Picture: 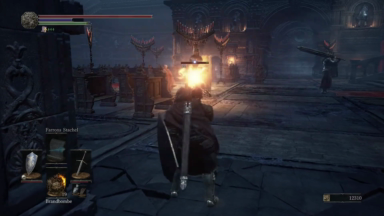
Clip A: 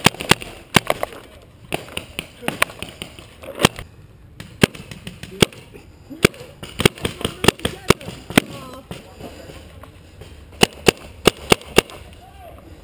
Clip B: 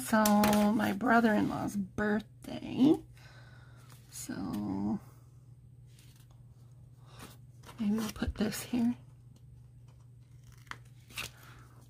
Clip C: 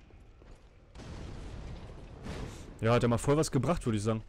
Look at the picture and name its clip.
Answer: C